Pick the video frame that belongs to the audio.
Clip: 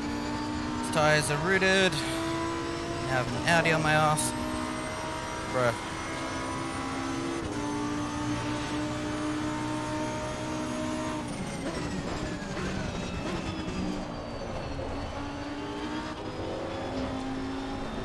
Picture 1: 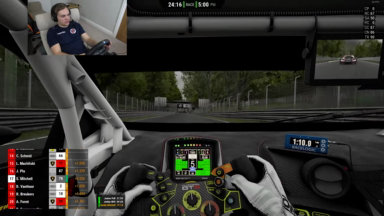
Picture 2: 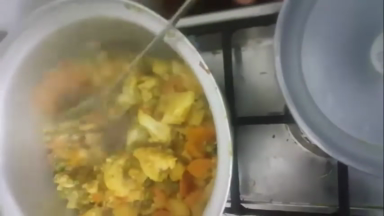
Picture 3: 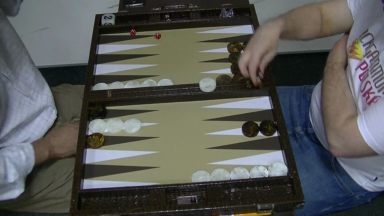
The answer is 1